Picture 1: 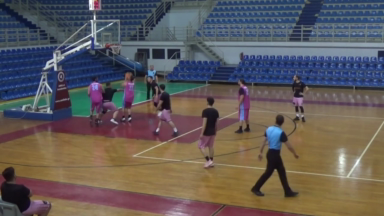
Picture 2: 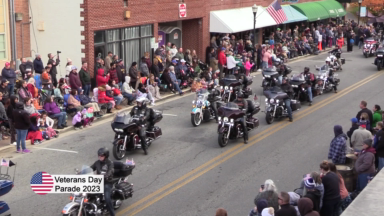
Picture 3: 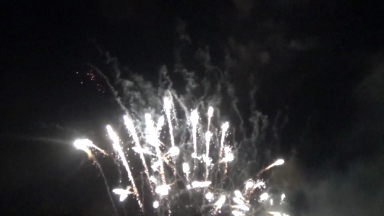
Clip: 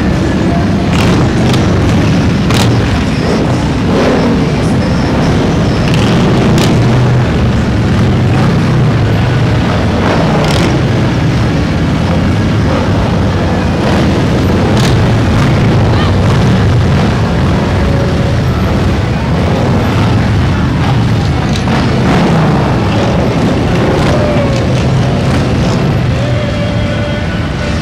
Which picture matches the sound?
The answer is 2